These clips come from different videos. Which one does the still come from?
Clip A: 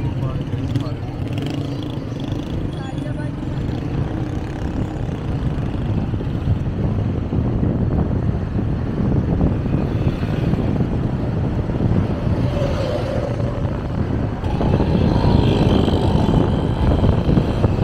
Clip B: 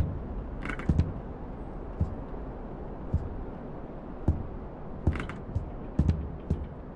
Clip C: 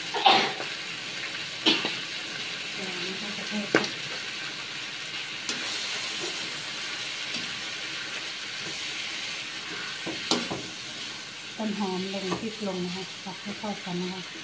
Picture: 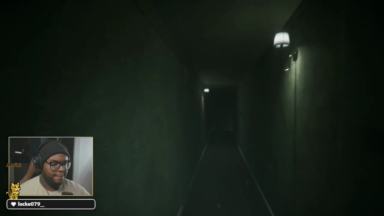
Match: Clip B